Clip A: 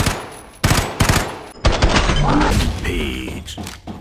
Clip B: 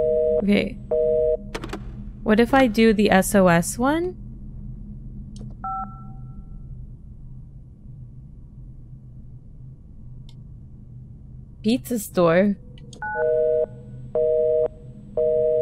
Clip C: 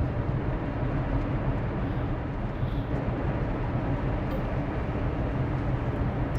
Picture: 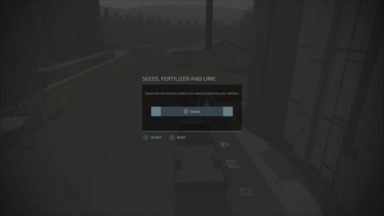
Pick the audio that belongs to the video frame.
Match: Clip C